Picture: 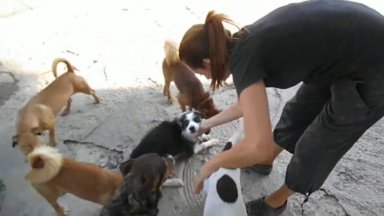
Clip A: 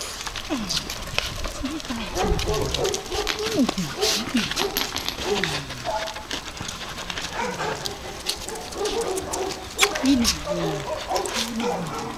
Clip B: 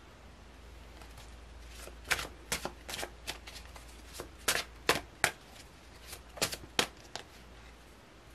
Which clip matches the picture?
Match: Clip A